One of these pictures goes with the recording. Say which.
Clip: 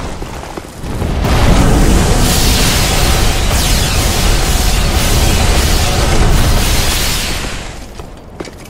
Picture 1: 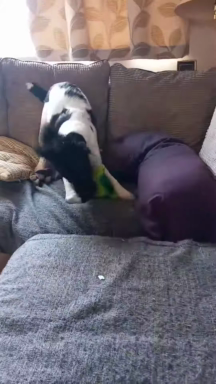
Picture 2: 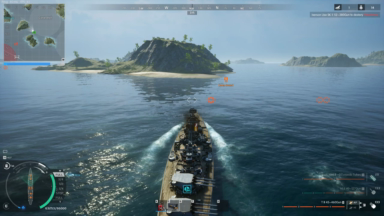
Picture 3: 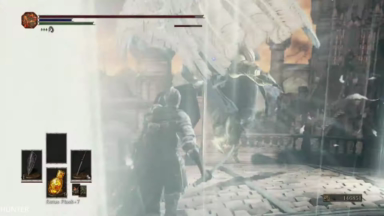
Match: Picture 3